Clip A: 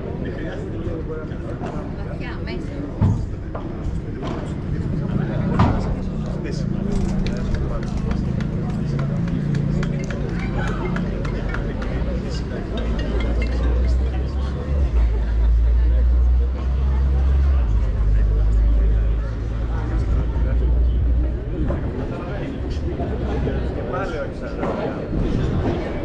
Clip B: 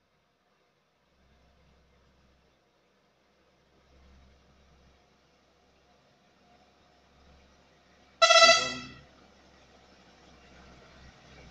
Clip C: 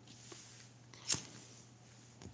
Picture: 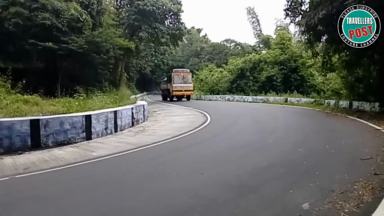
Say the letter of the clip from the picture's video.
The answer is B